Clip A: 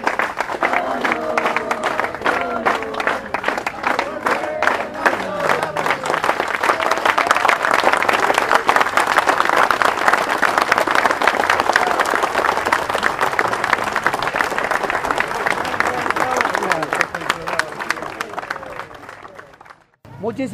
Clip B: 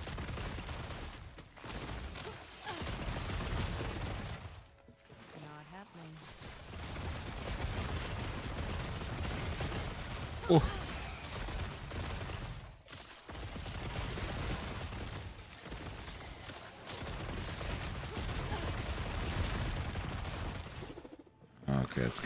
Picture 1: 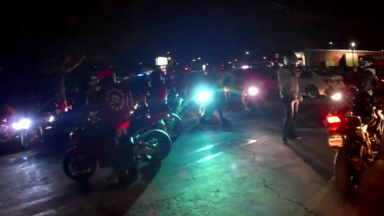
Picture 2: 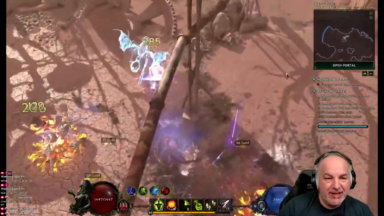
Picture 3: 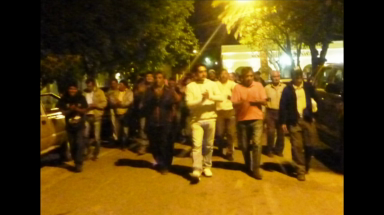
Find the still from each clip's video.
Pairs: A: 3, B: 2